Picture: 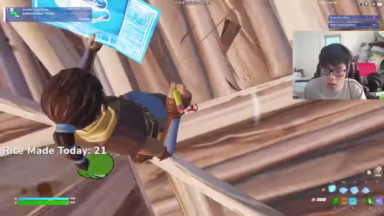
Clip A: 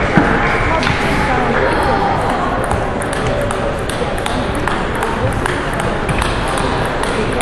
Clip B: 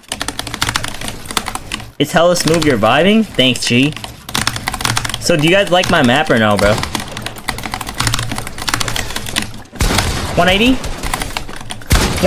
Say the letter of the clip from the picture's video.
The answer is B